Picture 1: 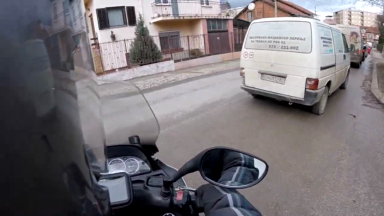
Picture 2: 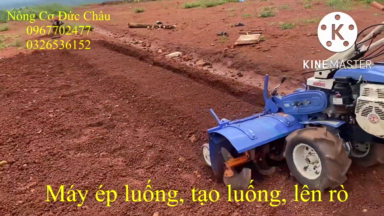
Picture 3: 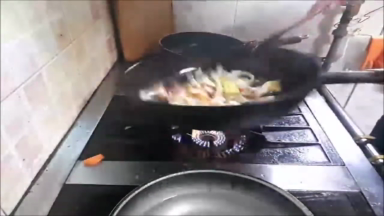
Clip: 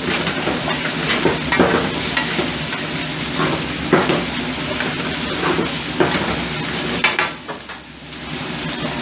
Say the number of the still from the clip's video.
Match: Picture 3